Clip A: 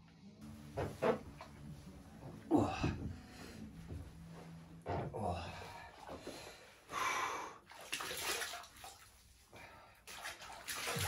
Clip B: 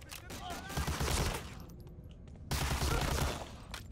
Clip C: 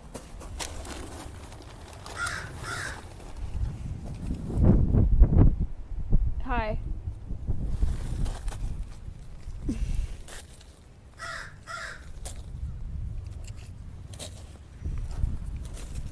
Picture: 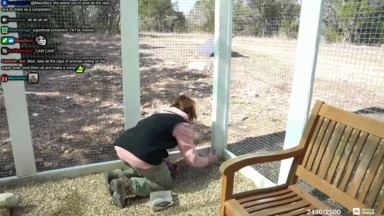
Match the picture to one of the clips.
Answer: C